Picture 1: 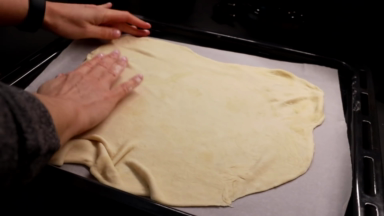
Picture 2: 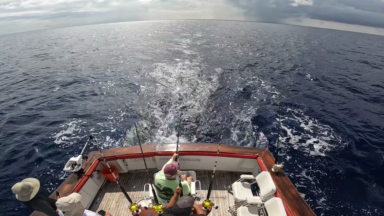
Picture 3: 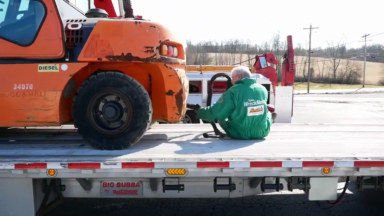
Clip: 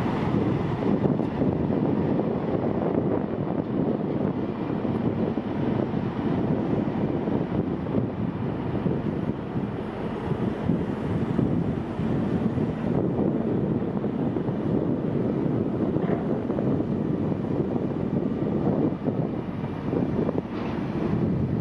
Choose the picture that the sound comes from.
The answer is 3